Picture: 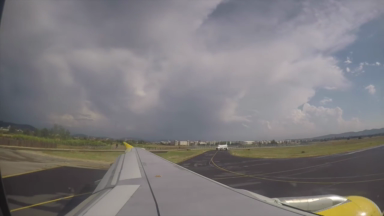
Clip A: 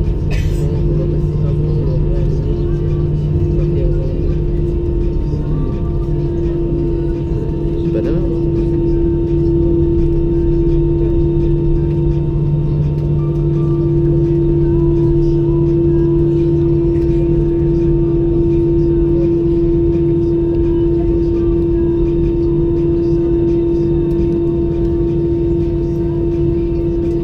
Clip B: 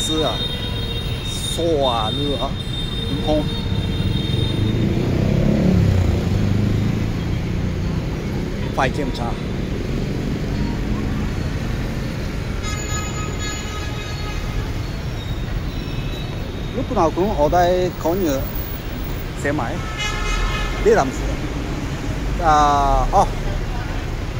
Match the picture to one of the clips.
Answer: A